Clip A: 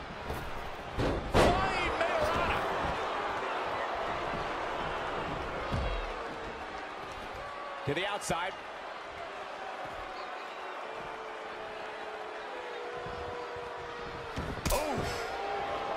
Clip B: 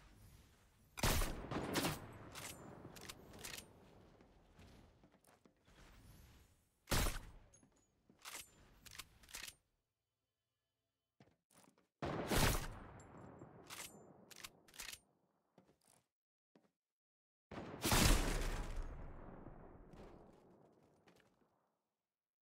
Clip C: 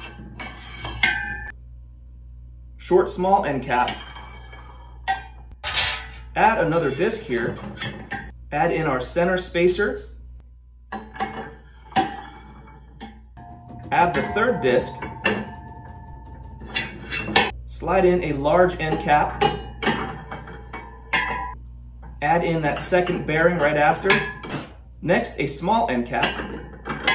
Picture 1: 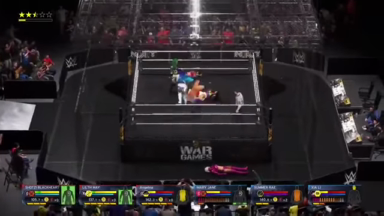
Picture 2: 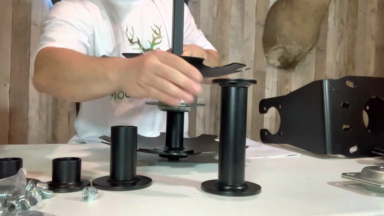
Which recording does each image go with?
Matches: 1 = A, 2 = C